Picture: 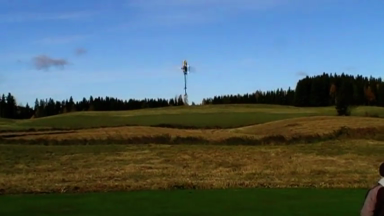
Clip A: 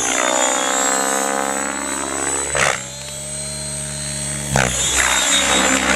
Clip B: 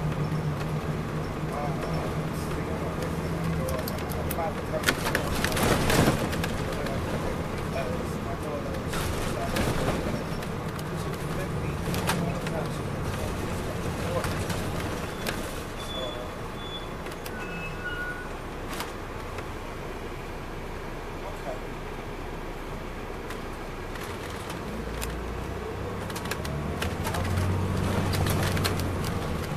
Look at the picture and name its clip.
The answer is A